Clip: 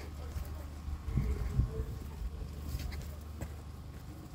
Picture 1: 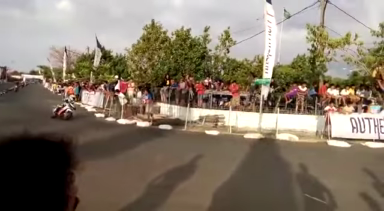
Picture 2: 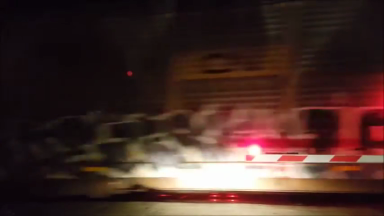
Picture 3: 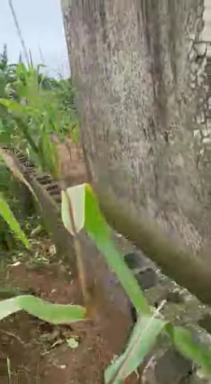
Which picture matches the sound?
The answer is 3